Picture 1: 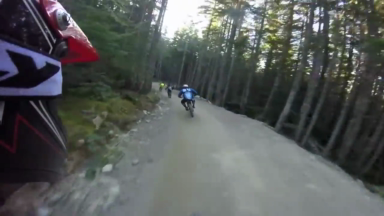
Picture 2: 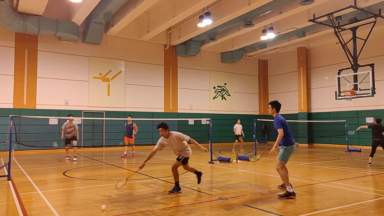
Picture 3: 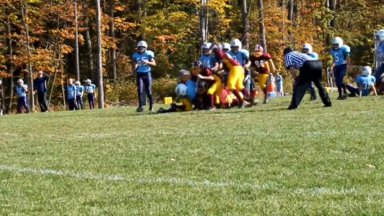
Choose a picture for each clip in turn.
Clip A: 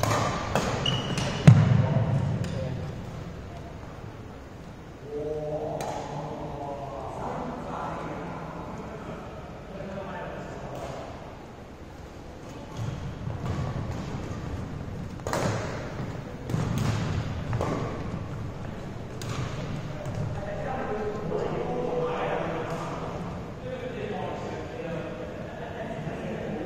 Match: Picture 2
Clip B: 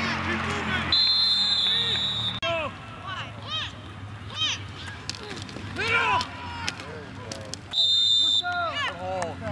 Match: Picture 3